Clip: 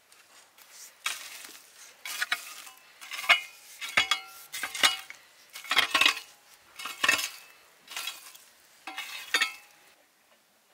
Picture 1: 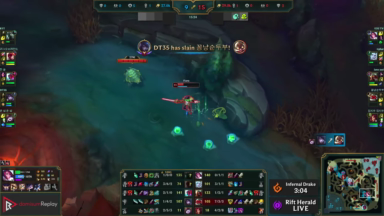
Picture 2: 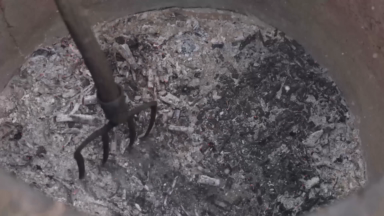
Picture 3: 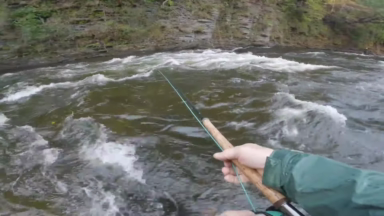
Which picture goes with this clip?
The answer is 2